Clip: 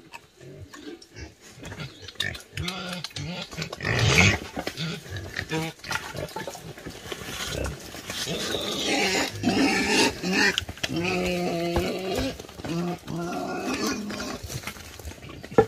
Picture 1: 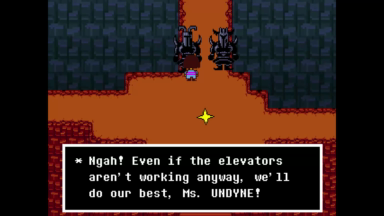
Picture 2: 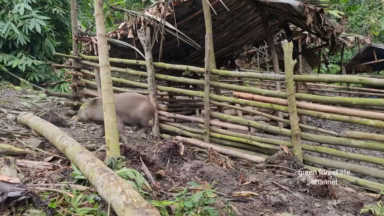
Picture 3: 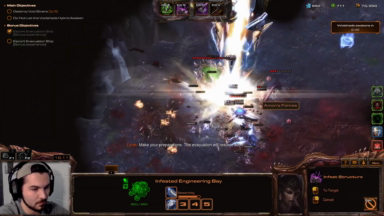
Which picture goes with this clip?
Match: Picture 2